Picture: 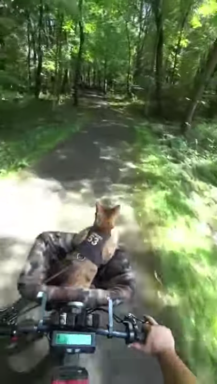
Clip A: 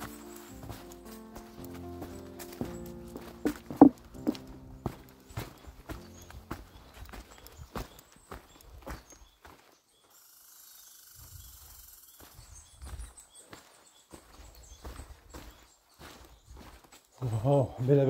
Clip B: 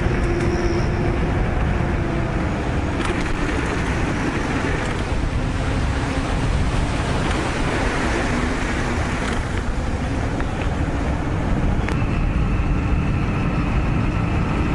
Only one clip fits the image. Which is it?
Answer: B